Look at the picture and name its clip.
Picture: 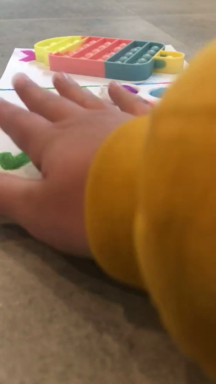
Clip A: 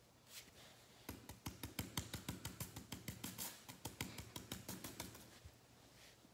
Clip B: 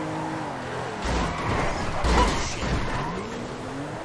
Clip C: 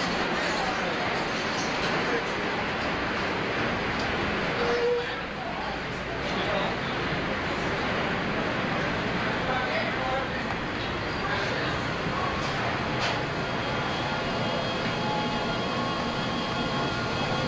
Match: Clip A